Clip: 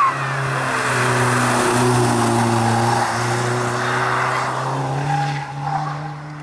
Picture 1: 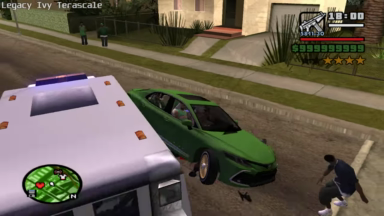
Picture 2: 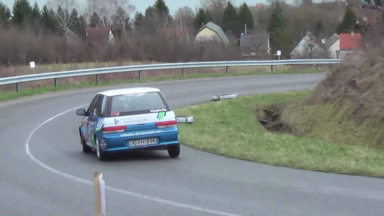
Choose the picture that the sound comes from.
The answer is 2